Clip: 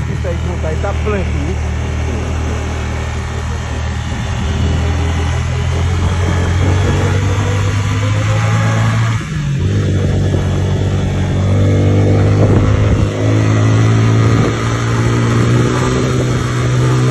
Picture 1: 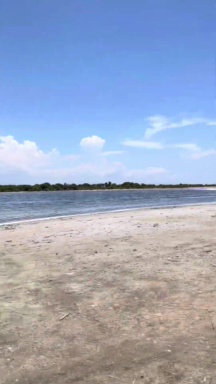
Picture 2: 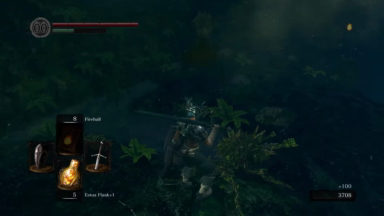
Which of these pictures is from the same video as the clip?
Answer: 1